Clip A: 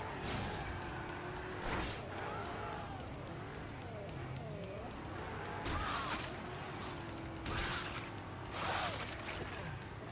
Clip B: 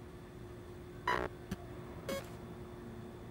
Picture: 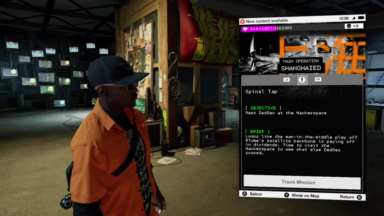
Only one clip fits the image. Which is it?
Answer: B